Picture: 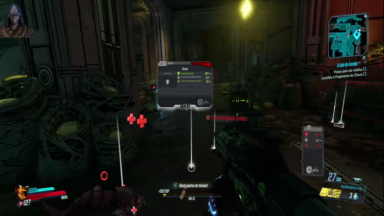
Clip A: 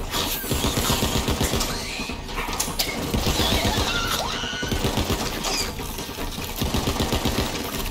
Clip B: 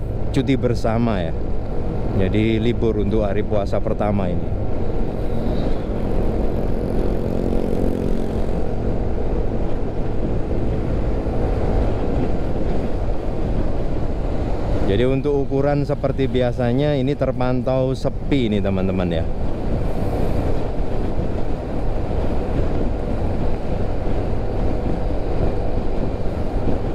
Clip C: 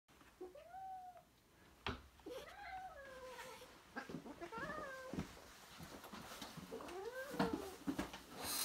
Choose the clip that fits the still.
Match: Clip A